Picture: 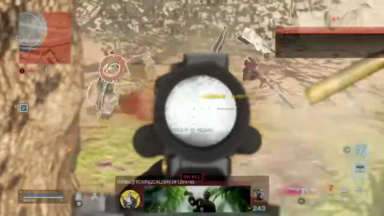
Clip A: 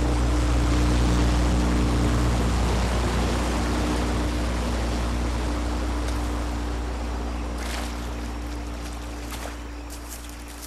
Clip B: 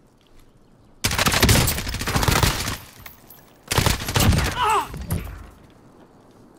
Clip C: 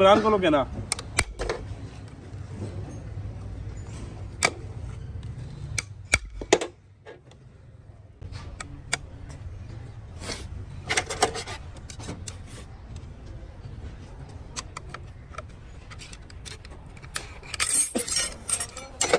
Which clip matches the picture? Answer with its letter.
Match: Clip B